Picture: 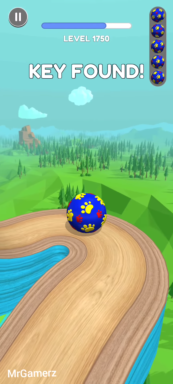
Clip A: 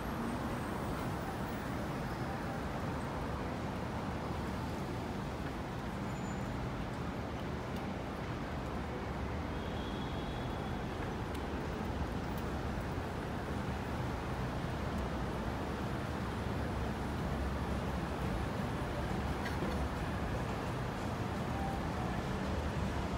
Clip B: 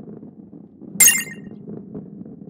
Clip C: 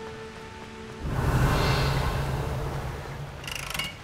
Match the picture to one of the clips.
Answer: B